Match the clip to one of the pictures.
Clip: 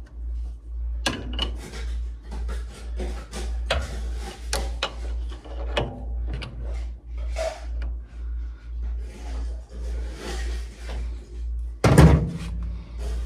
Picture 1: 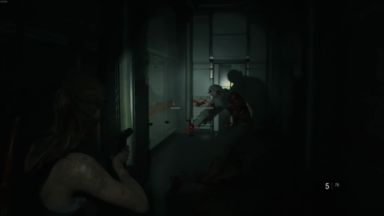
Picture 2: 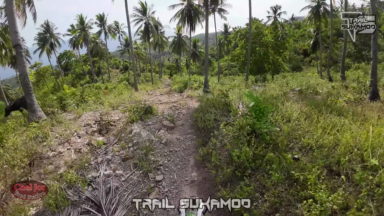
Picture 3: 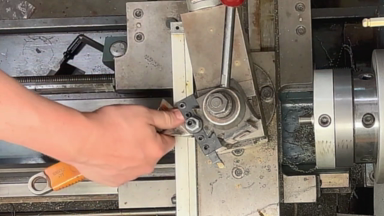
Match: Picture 3